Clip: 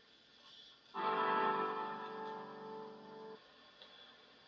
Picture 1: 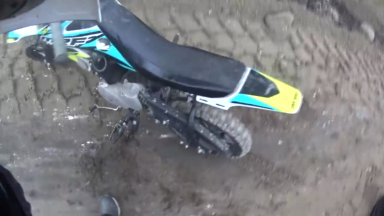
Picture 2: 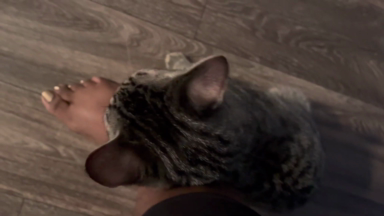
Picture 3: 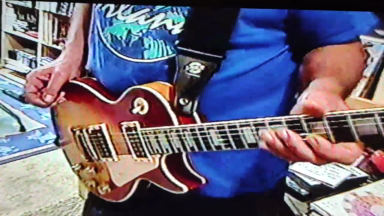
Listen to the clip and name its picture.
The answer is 3